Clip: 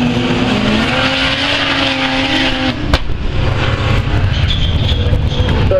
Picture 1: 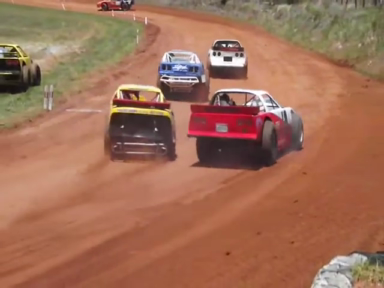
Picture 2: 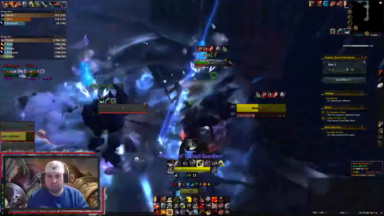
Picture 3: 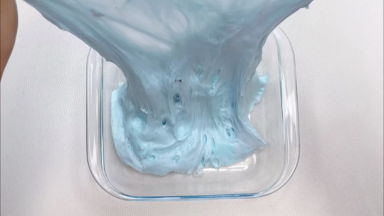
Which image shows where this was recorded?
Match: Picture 1